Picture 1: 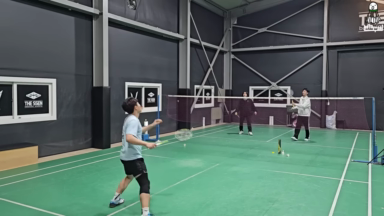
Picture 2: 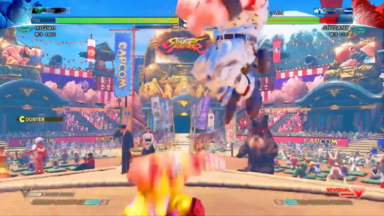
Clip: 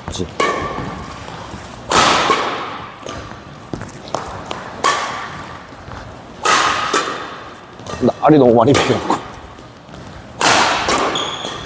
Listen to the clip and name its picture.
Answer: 1